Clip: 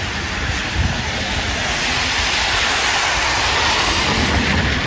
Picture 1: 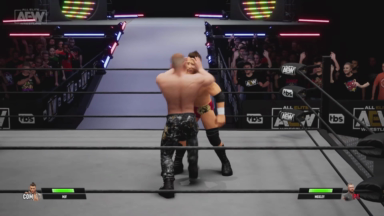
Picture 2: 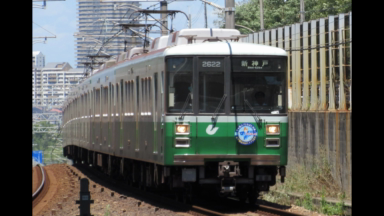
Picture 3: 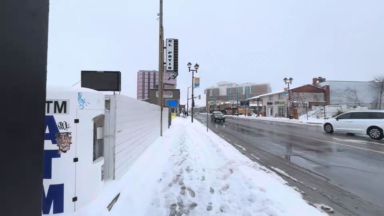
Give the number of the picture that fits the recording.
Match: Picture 3